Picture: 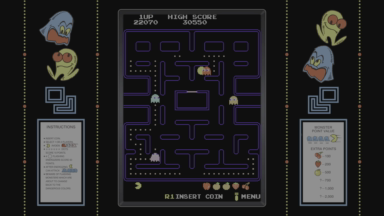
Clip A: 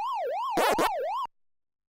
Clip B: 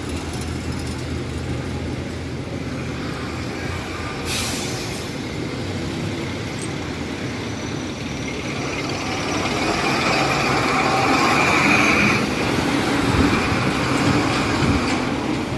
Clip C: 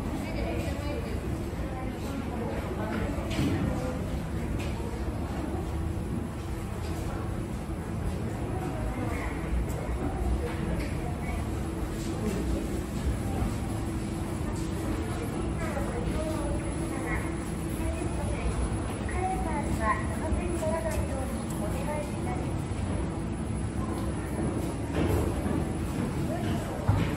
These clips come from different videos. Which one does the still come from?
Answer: A